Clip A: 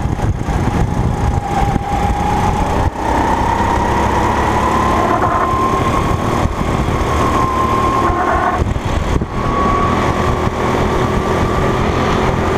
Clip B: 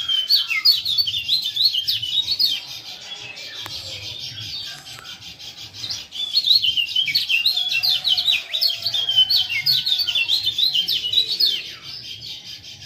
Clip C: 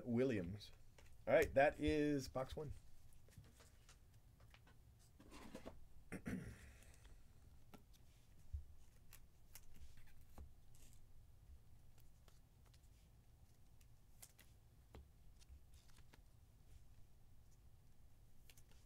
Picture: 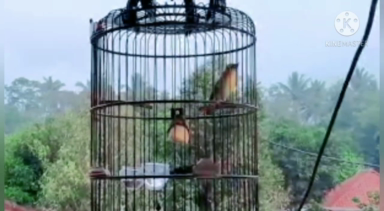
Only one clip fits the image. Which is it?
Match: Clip B